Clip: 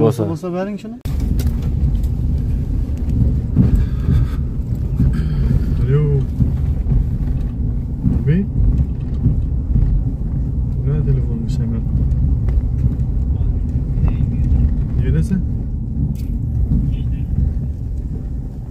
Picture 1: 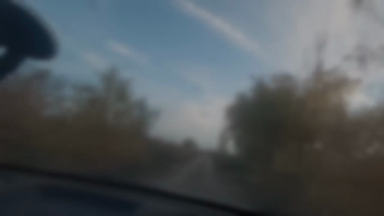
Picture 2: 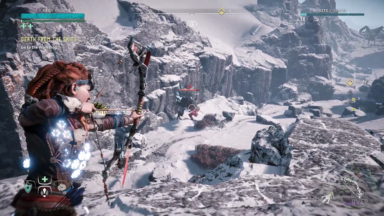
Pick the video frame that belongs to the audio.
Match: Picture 1